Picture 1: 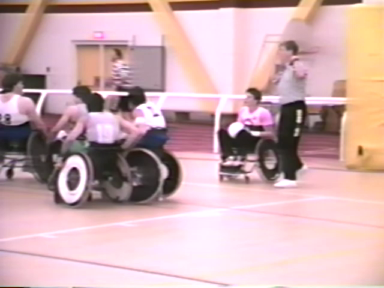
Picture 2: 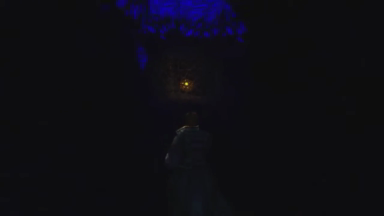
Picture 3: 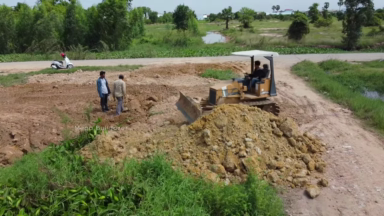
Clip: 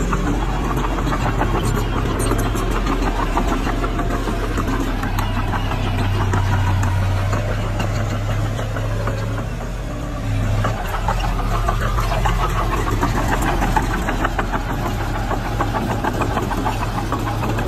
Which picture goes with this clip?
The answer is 3